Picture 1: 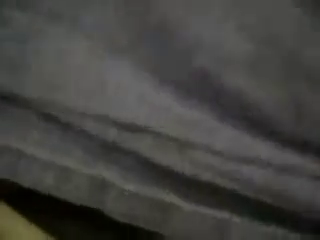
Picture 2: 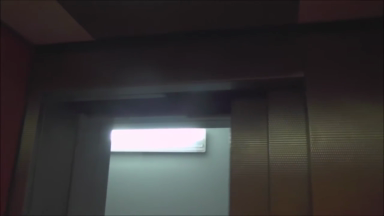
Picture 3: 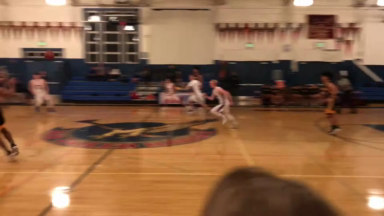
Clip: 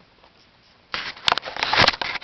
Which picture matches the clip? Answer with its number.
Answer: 1